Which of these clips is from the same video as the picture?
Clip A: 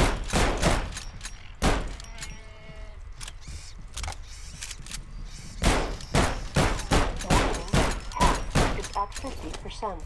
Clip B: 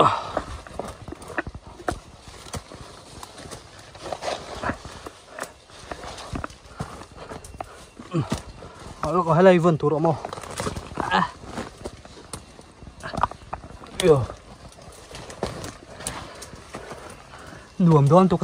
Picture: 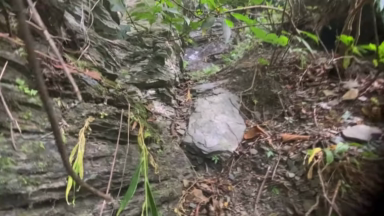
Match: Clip B